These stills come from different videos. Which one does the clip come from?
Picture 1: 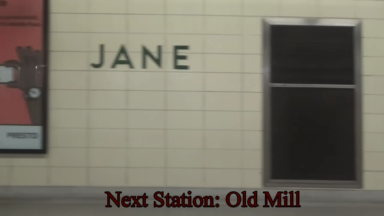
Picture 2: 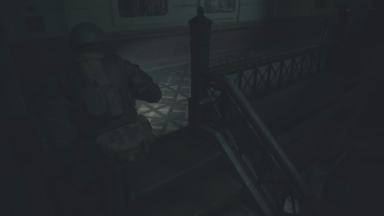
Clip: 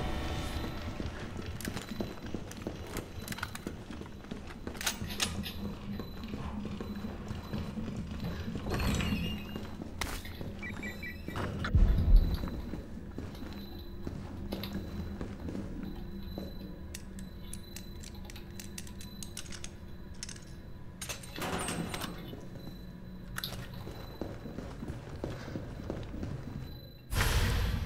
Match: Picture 2